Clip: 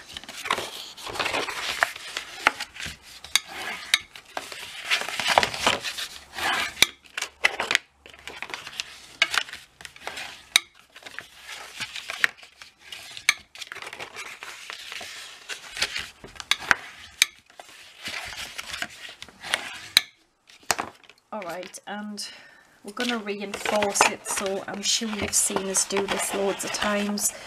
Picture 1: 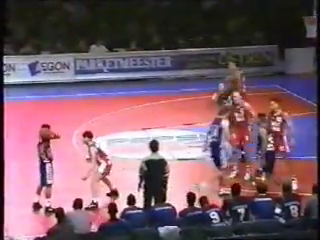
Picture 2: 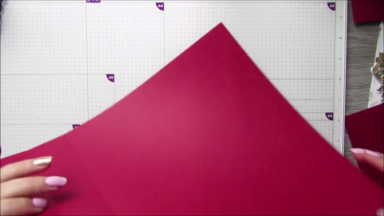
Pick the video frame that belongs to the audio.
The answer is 2